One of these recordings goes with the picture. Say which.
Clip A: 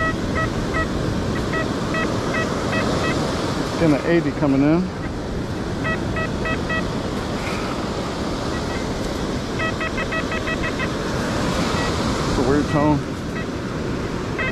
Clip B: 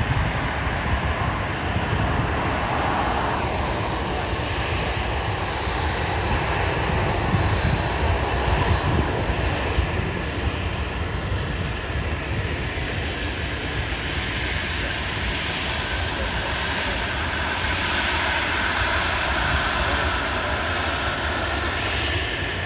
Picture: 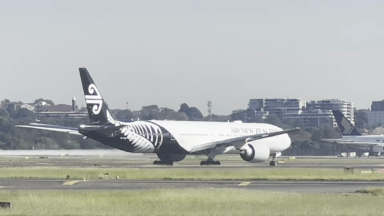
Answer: B